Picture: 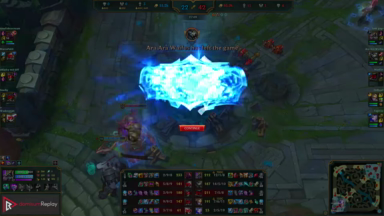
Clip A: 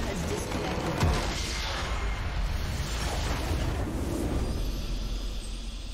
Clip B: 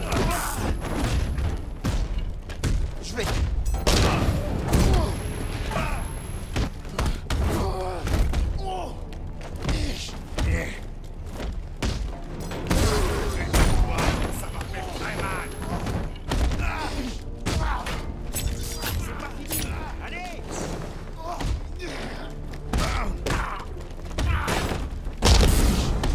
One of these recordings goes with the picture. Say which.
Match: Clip A